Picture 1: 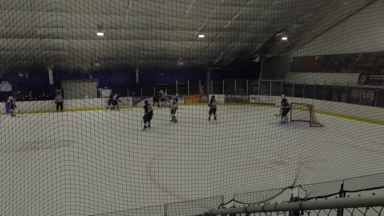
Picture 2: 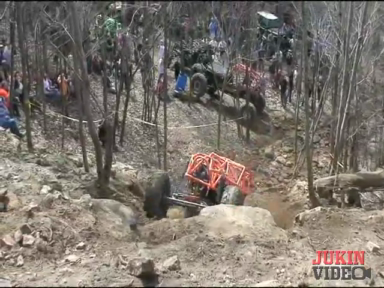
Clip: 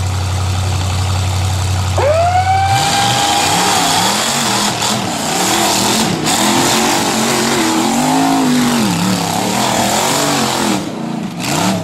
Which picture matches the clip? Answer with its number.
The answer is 2